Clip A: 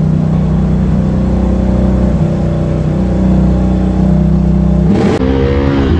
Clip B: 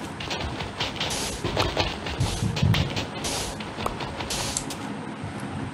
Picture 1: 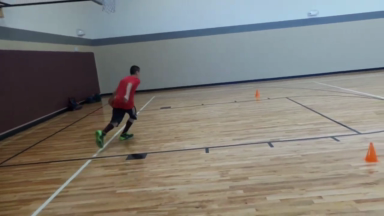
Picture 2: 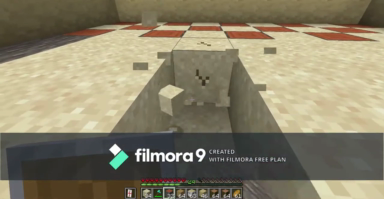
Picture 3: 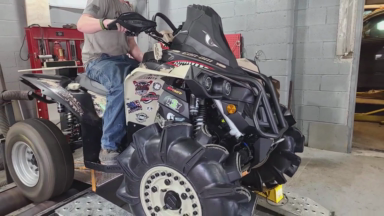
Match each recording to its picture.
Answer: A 3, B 2